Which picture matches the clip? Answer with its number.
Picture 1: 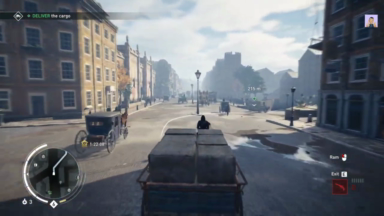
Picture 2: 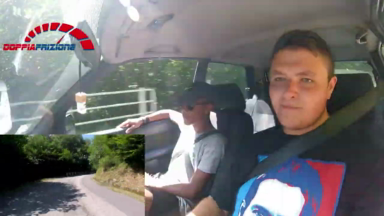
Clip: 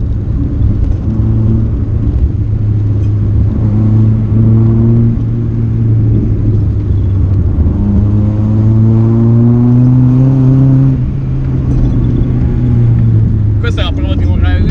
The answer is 2